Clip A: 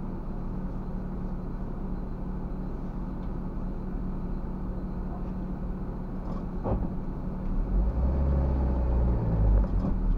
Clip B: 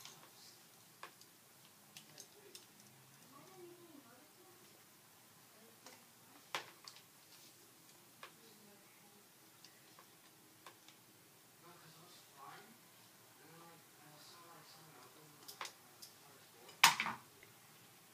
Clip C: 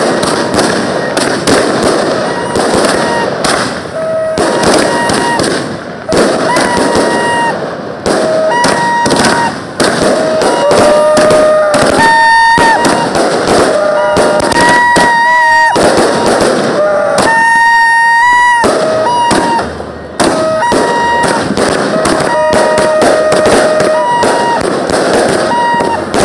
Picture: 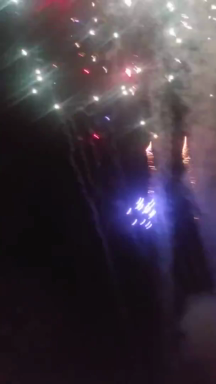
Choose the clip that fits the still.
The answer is C